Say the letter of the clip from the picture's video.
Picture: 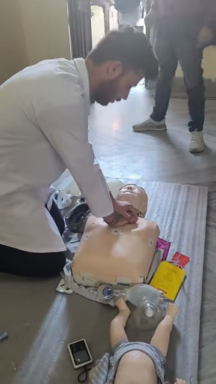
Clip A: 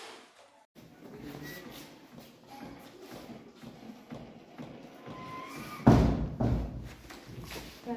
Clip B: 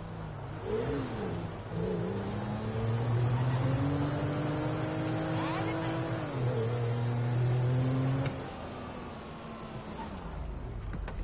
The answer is A